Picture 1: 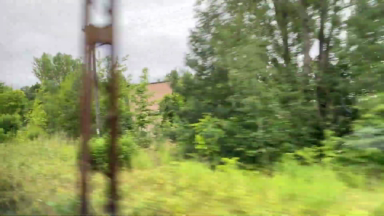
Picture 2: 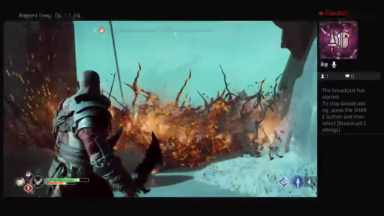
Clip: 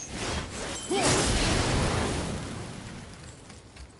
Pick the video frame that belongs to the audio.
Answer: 2